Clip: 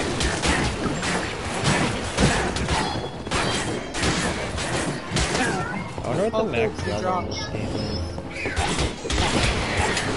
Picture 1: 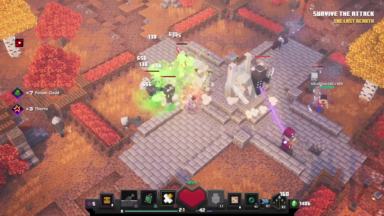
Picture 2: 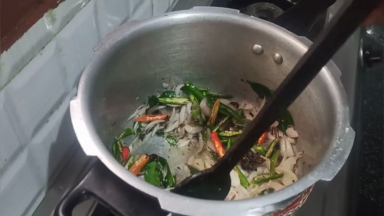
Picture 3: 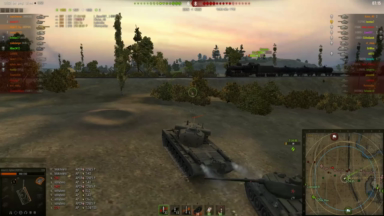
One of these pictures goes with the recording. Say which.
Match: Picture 1